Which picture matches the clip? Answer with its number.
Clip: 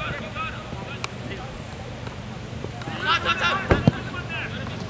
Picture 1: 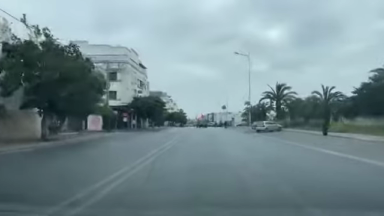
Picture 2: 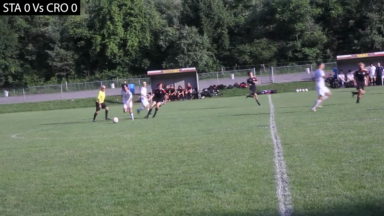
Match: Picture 2